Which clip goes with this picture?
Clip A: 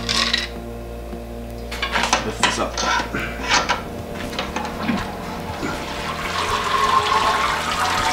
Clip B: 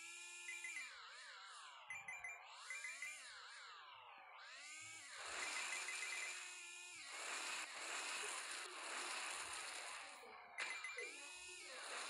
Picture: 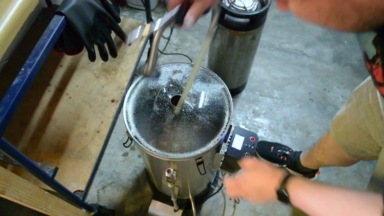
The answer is A